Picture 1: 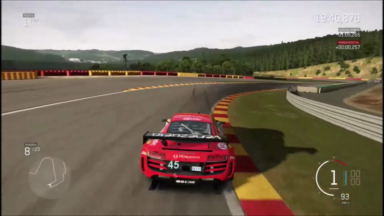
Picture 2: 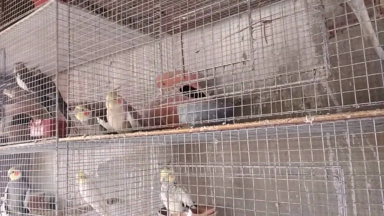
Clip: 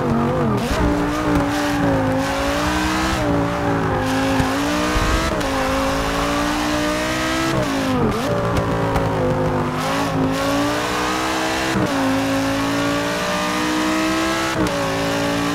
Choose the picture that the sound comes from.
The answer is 1